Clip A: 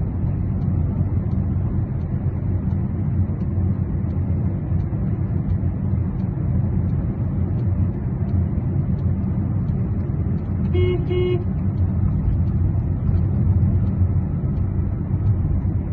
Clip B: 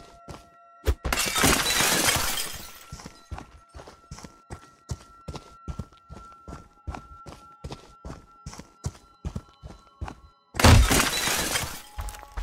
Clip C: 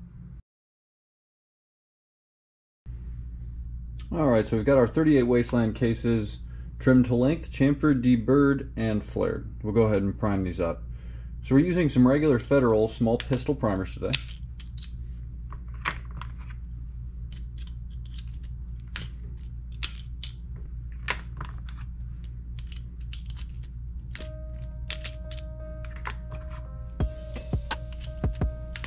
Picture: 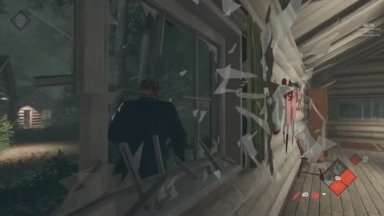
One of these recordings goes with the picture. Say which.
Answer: B